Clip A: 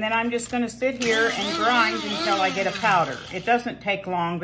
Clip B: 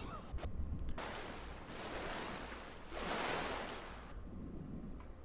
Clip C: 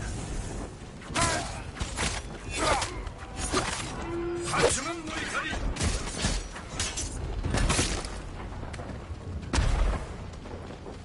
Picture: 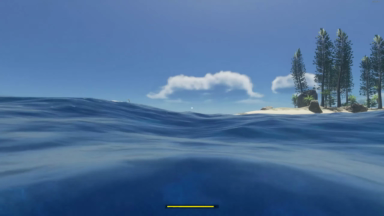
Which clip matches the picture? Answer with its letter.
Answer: B